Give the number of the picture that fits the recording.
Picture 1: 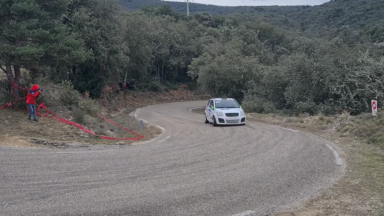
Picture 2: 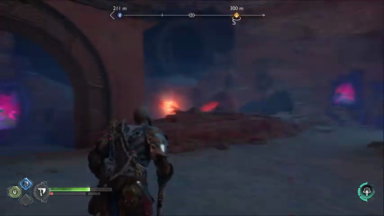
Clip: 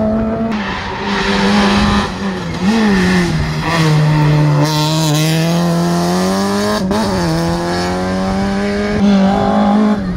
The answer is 1